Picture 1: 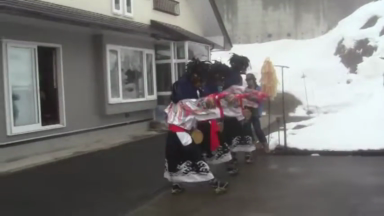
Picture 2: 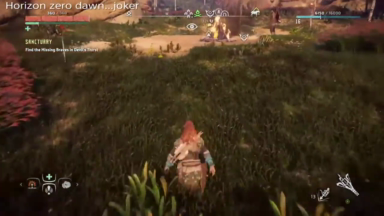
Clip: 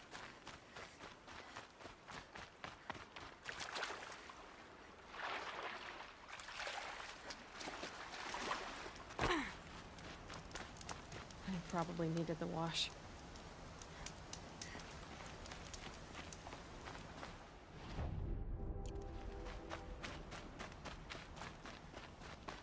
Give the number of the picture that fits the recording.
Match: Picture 2